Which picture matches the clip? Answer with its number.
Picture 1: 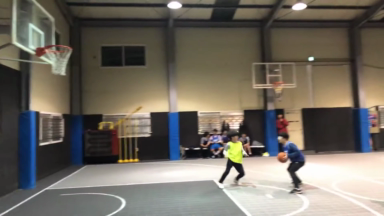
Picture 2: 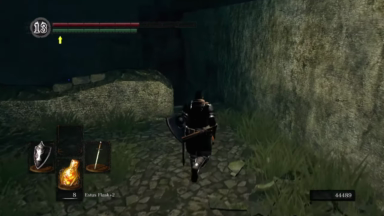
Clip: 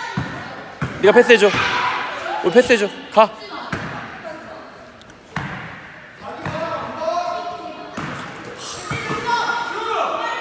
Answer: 1